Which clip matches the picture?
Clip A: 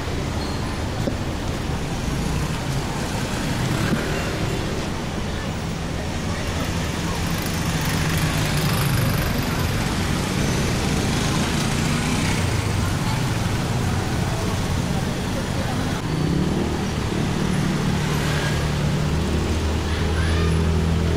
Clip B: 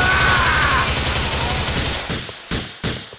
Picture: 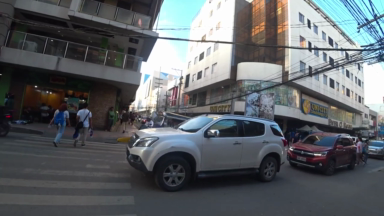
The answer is A